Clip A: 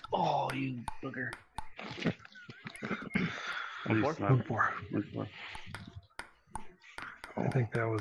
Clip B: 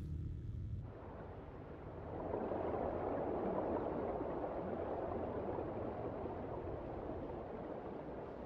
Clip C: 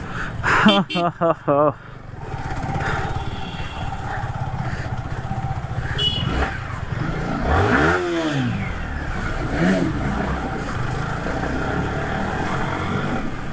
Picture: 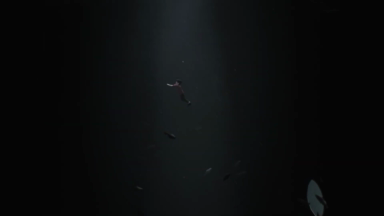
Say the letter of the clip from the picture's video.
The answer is B